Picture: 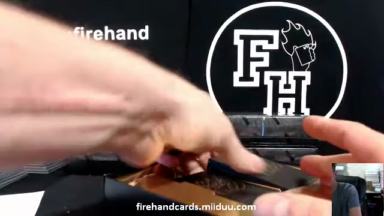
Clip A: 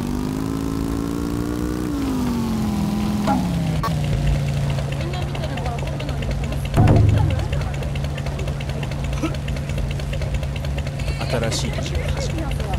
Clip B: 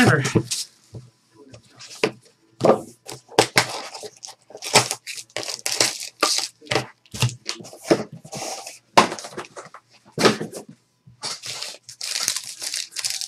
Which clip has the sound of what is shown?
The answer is B